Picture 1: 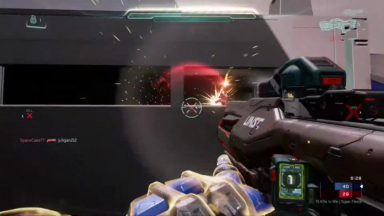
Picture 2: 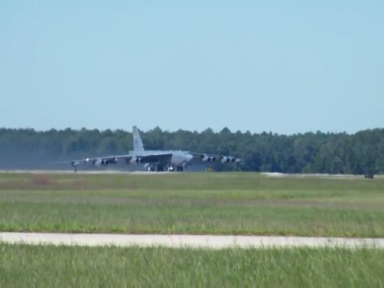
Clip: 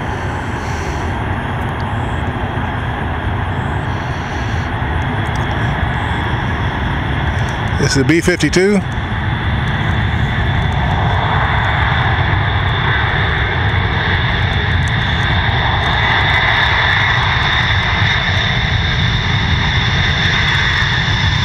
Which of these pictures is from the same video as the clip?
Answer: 2